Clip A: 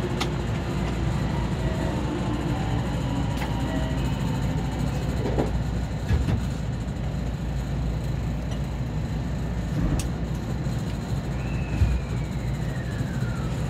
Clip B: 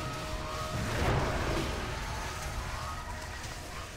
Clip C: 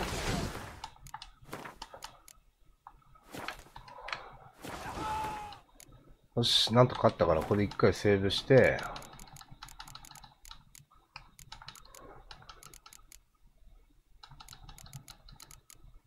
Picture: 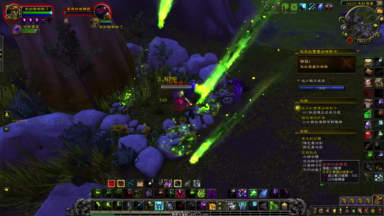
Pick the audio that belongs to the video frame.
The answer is B